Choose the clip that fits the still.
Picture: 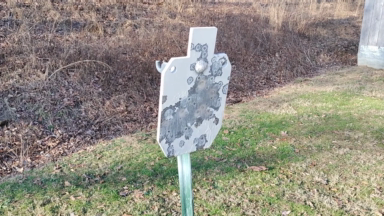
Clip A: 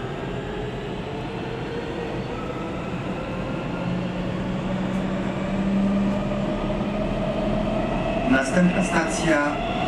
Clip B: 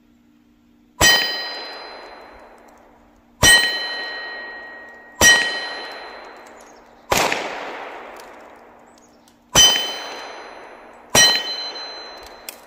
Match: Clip B